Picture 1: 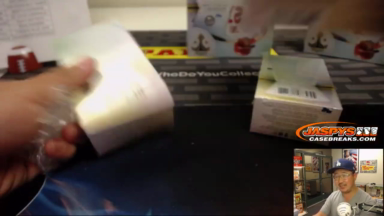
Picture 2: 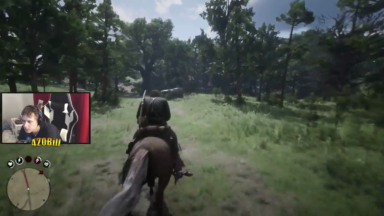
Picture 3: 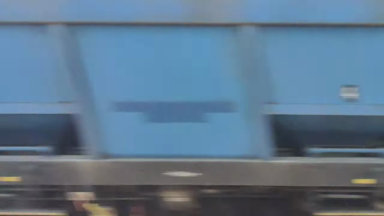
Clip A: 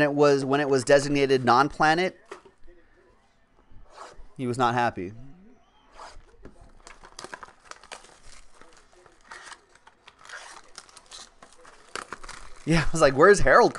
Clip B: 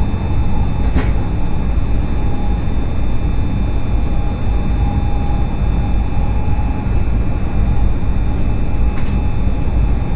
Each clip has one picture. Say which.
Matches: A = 1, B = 3